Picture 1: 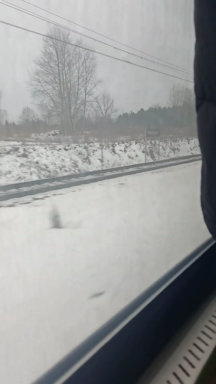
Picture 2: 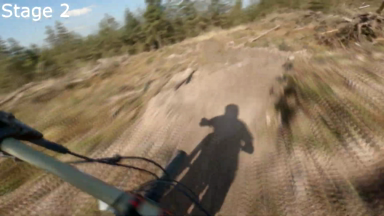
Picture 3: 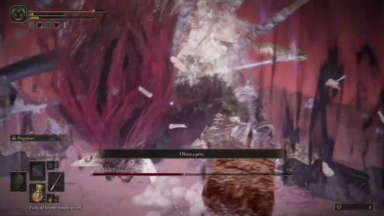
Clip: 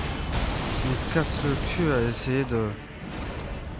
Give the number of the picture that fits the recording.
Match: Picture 3